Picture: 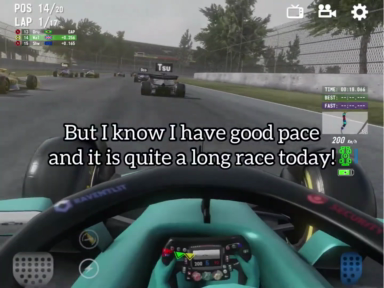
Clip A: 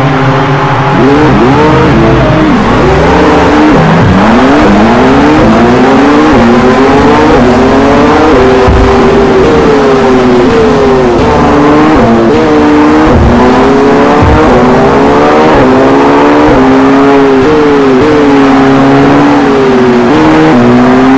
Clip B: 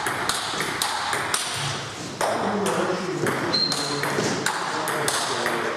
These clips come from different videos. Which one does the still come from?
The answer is A